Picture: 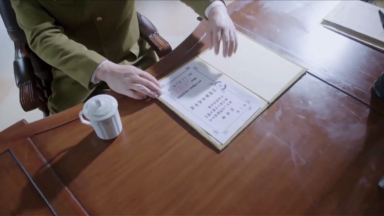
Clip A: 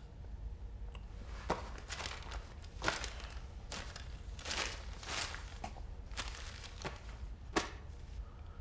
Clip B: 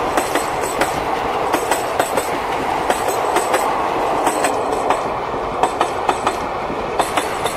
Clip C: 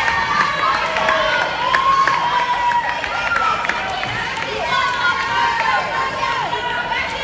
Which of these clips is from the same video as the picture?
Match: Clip A